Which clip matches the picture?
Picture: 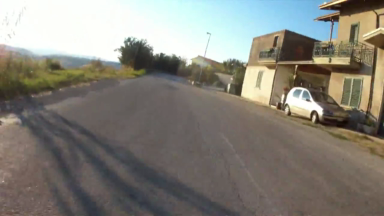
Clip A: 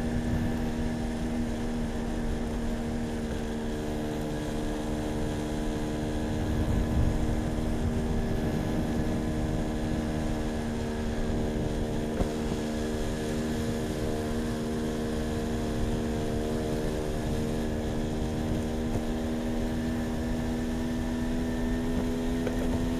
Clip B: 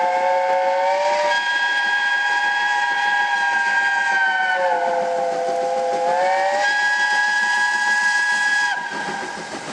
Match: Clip A